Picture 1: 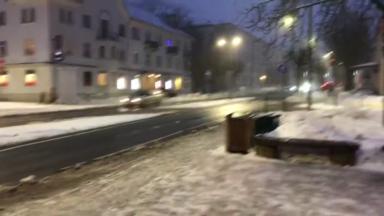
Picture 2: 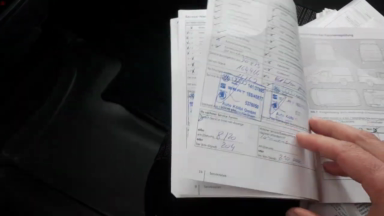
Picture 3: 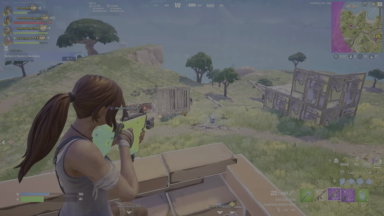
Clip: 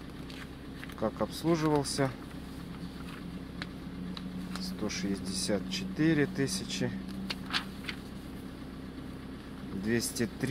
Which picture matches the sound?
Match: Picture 2